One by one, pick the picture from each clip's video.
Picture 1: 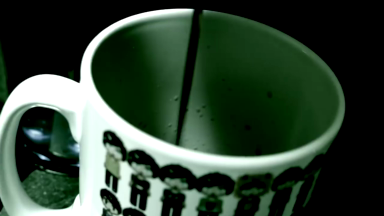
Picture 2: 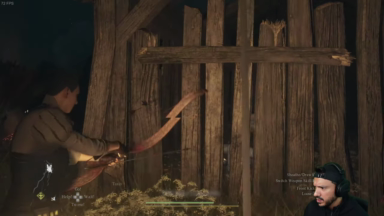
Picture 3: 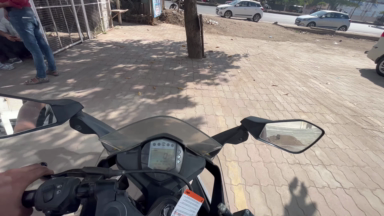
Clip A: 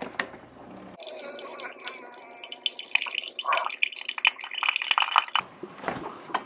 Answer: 1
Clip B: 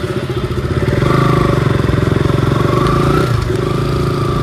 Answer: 3